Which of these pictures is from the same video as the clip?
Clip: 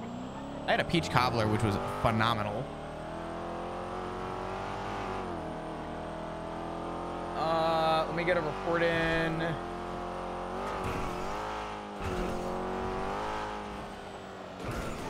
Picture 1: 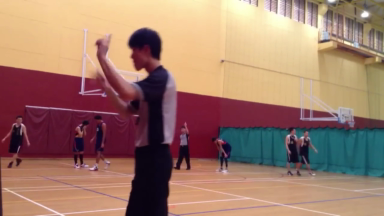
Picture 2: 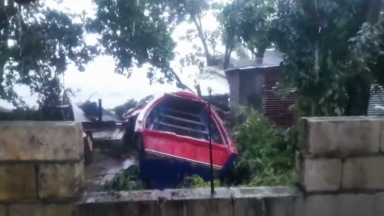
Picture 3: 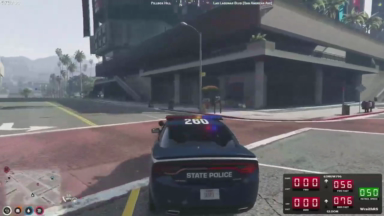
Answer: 3